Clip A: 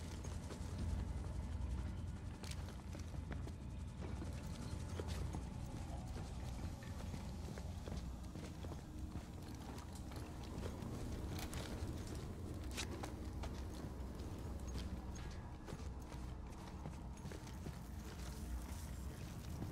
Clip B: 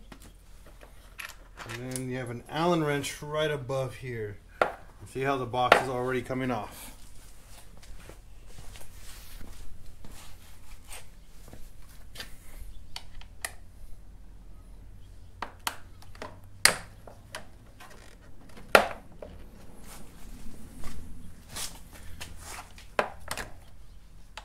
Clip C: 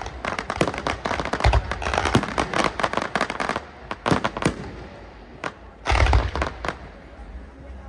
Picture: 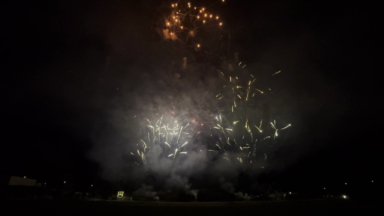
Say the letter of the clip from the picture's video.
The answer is C